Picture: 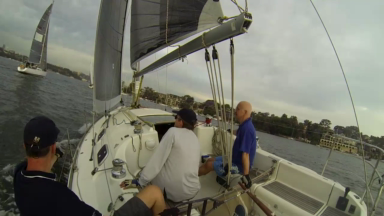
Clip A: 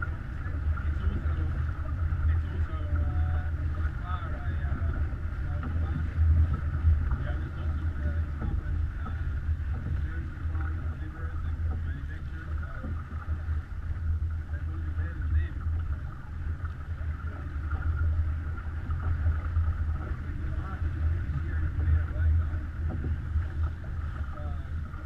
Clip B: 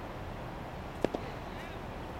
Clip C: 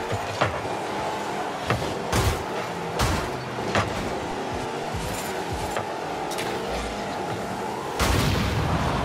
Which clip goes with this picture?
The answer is A